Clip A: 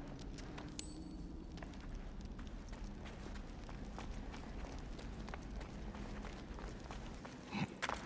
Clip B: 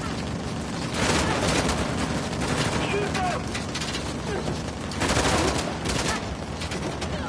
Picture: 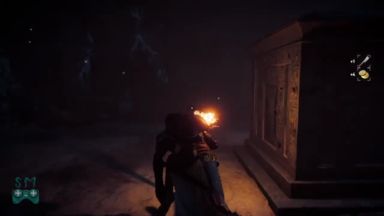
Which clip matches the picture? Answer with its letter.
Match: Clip A